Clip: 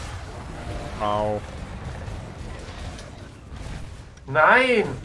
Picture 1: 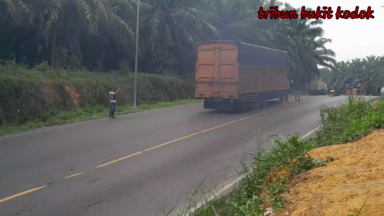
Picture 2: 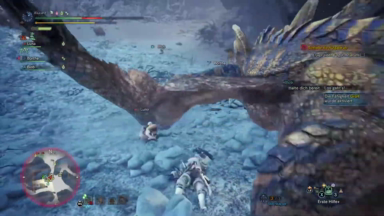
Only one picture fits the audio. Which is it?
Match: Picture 2